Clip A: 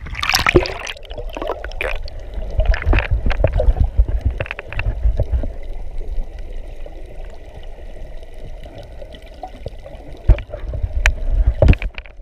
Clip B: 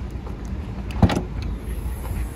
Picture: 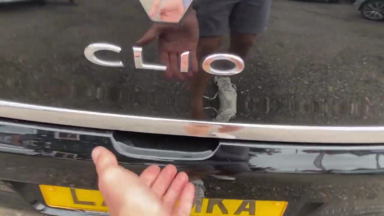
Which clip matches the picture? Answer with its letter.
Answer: B